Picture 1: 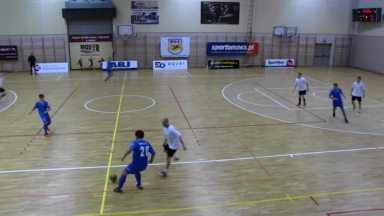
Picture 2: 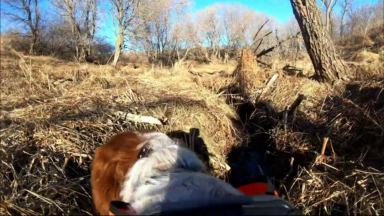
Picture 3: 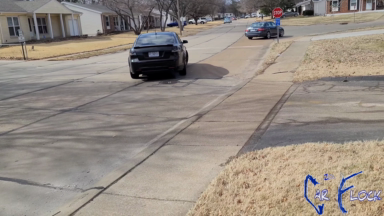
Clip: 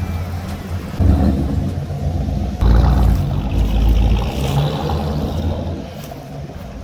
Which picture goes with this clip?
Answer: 3